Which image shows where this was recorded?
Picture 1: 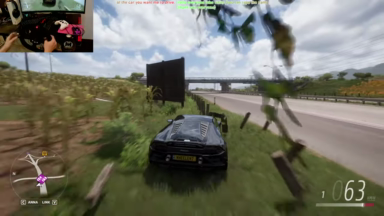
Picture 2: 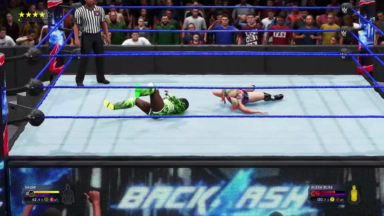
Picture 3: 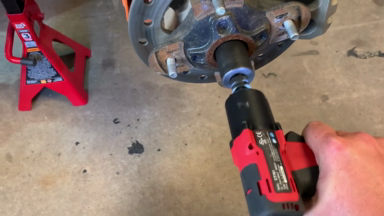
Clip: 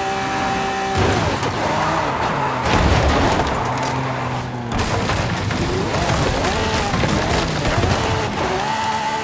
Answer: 1